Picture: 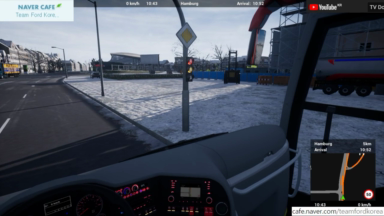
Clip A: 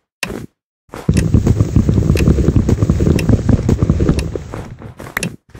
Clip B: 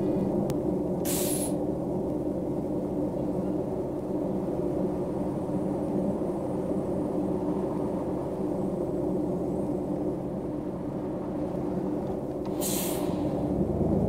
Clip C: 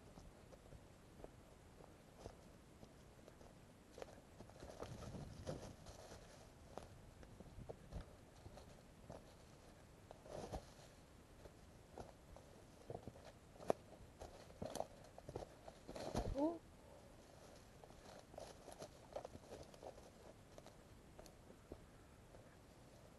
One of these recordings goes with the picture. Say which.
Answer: B